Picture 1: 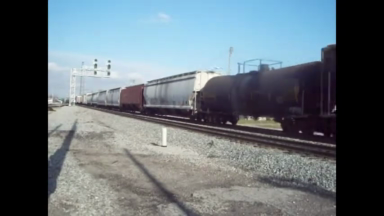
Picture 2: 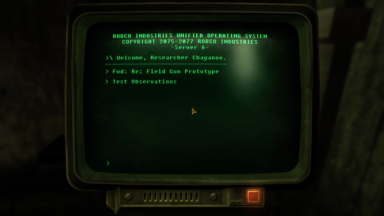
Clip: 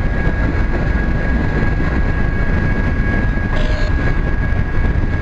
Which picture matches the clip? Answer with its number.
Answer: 1